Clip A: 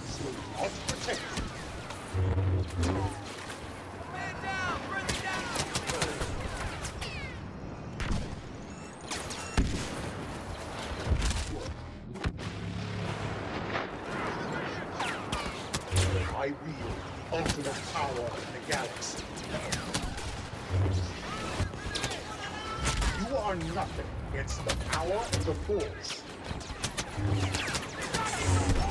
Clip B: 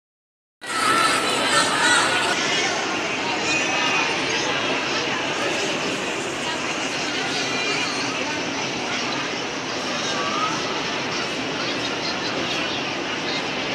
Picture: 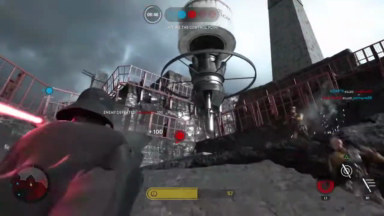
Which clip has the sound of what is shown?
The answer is A